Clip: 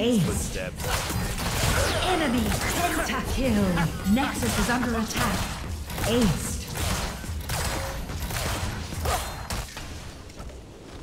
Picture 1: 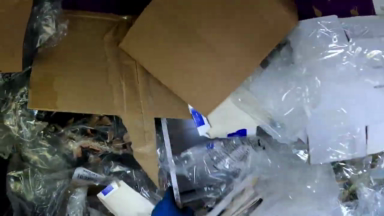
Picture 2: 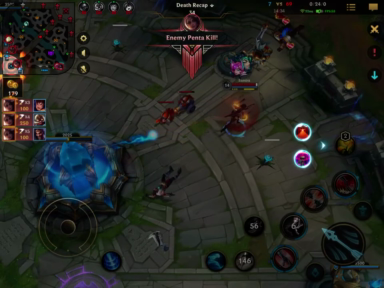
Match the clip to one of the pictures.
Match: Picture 2